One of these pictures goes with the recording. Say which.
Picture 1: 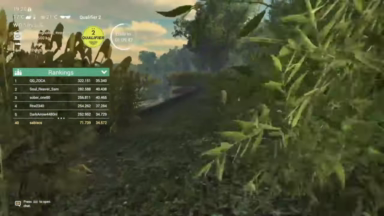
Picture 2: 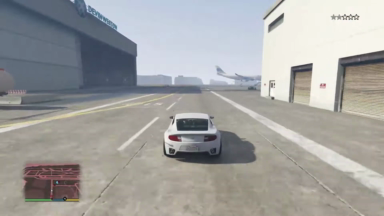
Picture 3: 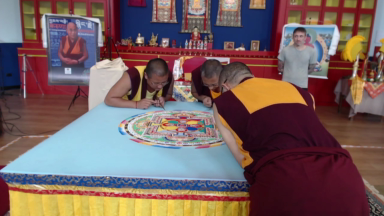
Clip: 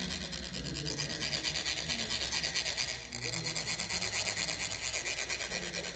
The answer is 3